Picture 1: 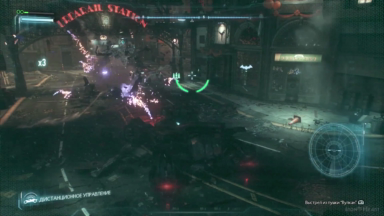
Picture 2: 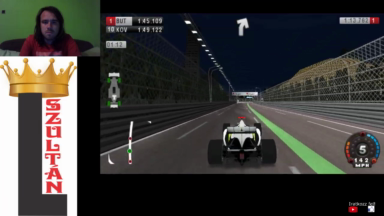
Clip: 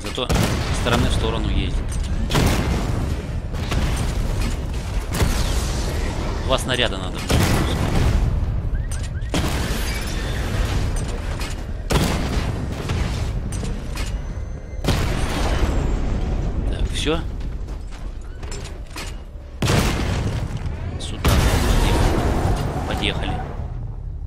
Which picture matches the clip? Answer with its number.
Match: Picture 1